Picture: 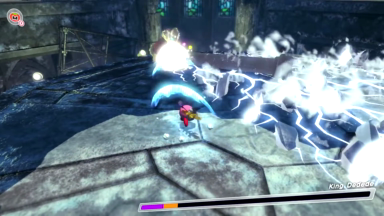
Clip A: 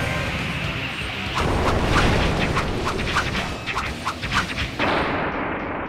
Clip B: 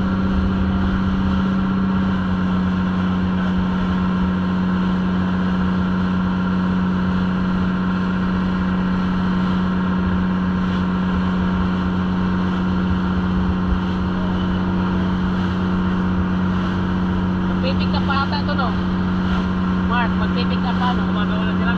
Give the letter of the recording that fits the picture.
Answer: A